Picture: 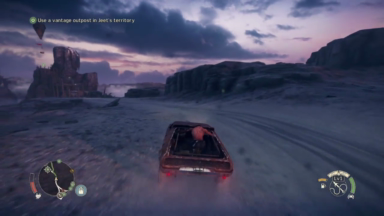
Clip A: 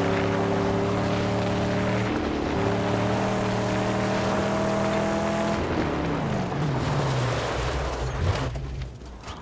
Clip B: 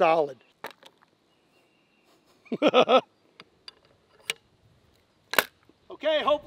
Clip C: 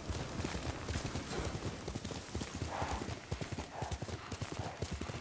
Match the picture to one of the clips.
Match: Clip A